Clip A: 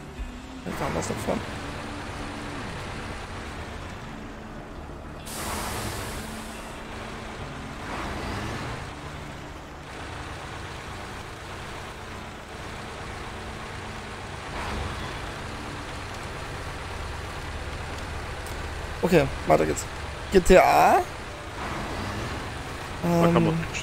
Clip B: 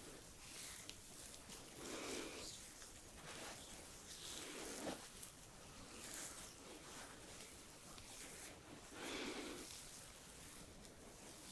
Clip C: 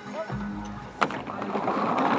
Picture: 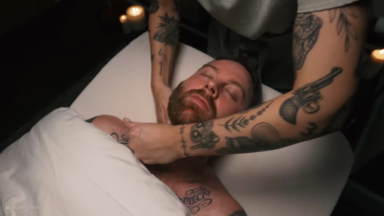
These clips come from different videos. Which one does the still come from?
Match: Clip B